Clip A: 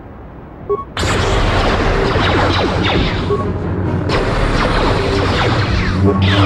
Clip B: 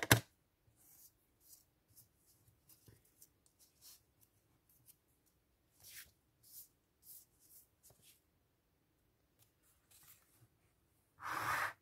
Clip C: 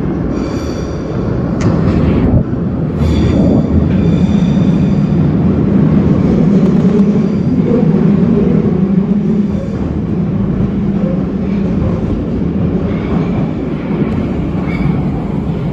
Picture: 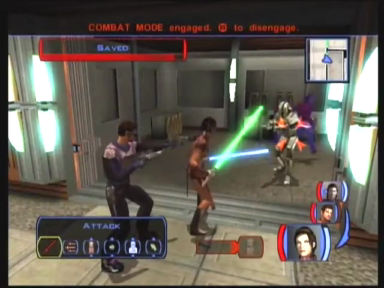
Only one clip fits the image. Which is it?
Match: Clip A